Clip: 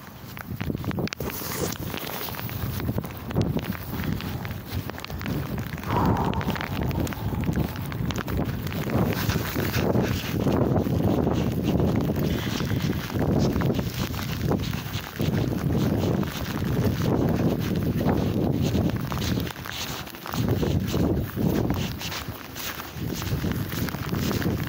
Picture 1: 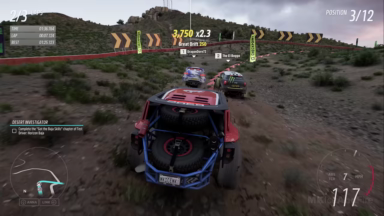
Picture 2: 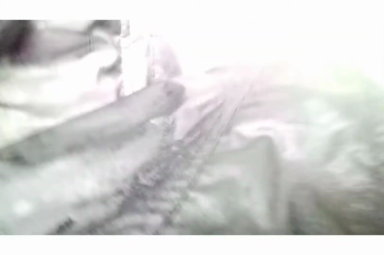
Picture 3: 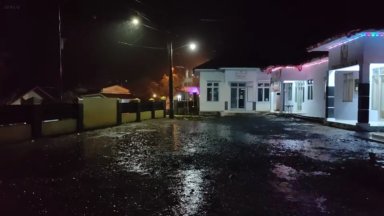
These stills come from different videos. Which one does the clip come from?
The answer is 2